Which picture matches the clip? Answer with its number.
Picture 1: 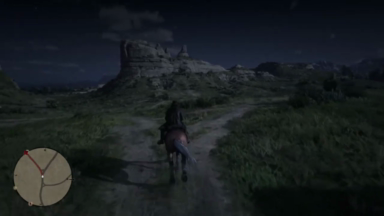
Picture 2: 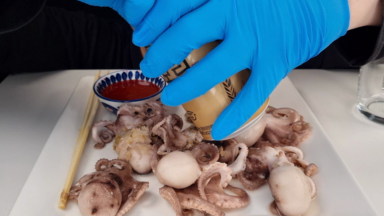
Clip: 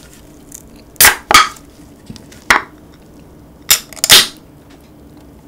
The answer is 2